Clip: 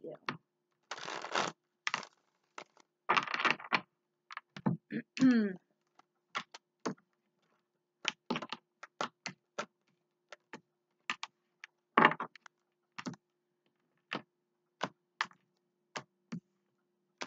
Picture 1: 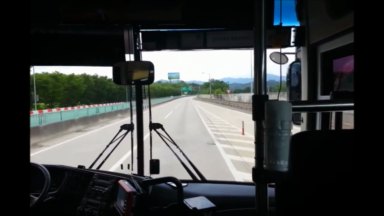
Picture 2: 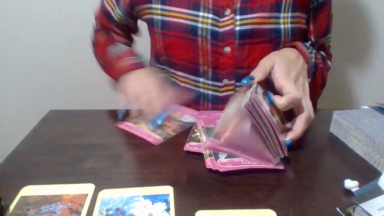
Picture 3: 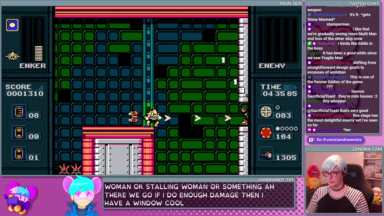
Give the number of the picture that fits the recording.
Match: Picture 2